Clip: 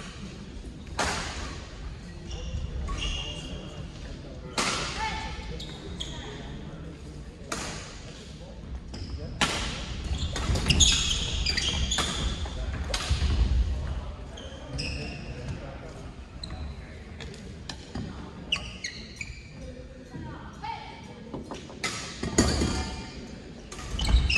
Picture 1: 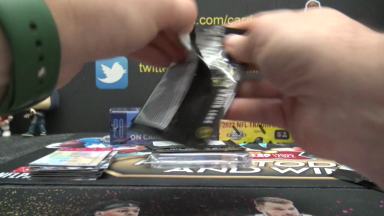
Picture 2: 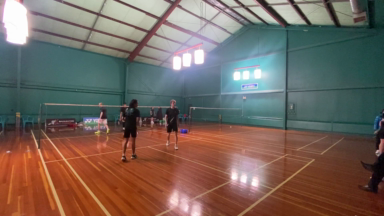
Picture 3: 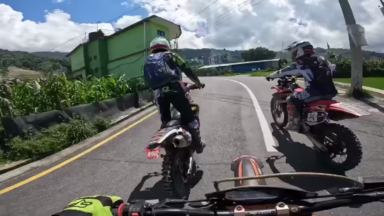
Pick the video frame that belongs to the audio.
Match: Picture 2